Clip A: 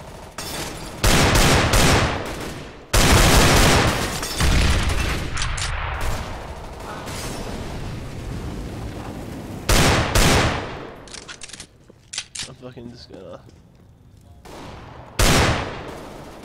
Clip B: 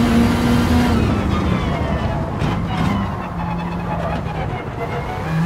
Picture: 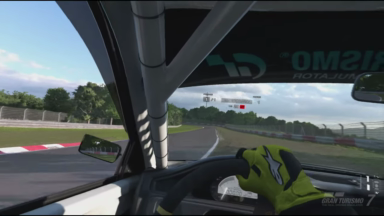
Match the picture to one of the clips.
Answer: B